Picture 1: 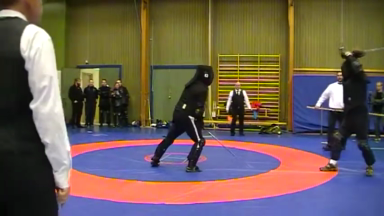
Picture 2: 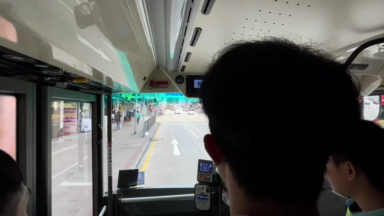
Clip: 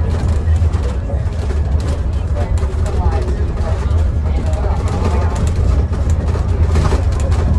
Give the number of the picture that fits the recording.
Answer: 2